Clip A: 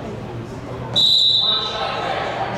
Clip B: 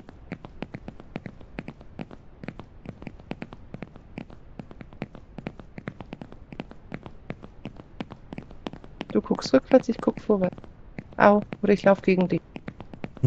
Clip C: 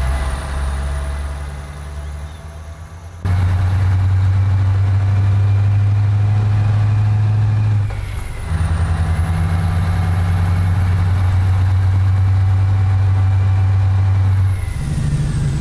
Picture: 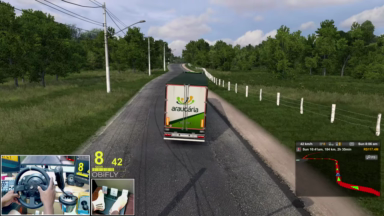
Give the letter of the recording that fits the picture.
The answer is C